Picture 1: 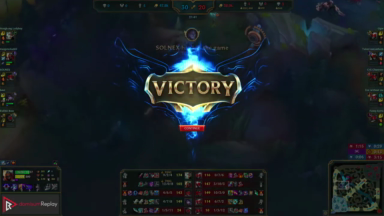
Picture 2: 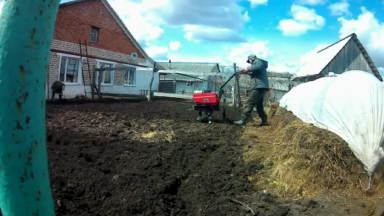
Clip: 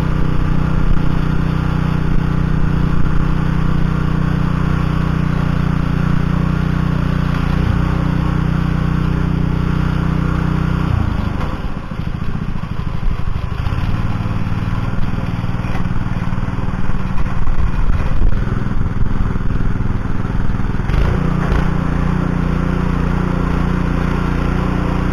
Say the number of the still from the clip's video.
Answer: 2